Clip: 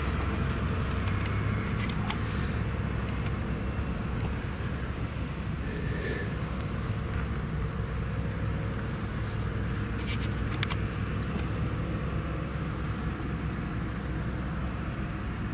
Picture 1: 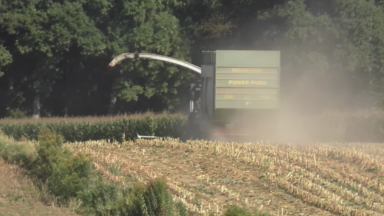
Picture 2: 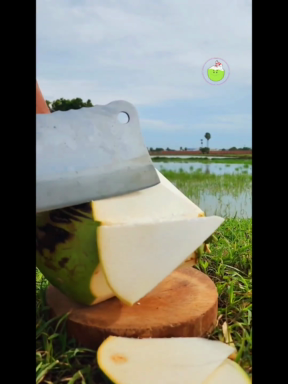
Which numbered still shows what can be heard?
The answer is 1